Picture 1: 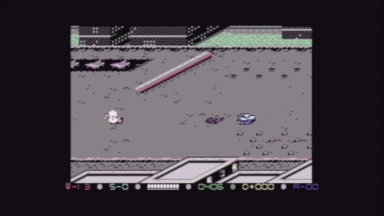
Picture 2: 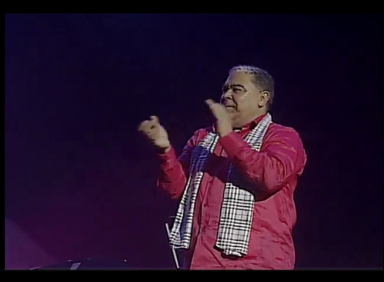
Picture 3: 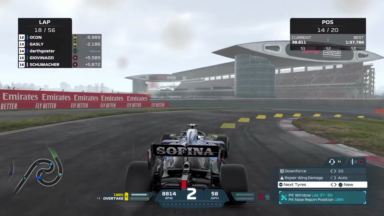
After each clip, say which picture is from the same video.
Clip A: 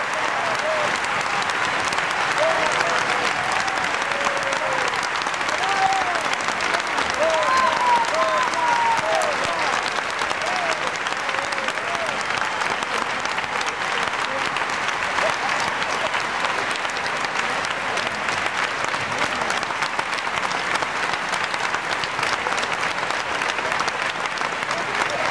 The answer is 2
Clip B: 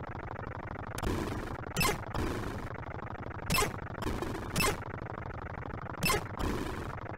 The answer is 1